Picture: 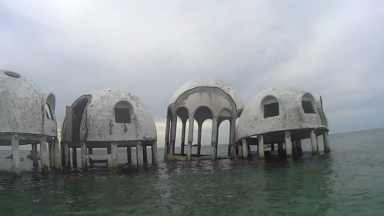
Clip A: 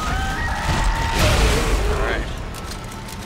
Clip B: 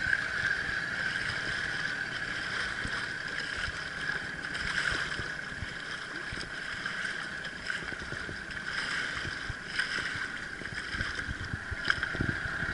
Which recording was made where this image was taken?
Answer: B